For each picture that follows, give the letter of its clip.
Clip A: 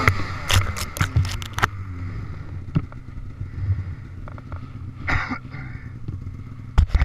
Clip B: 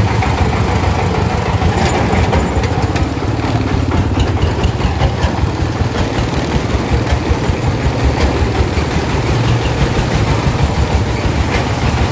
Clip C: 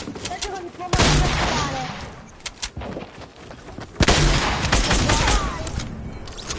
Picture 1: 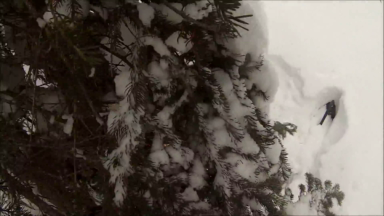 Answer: A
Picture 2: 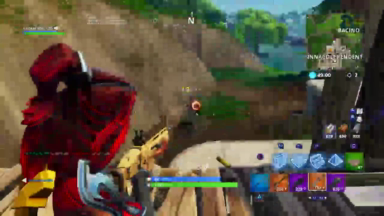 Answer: C